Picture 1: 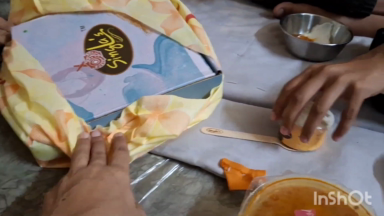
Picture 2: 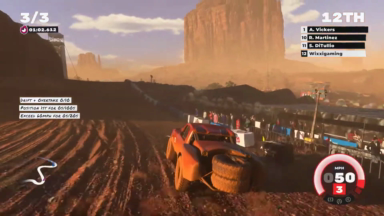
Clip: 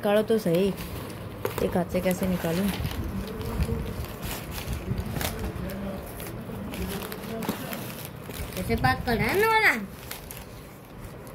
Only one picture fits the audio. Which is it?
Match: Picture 1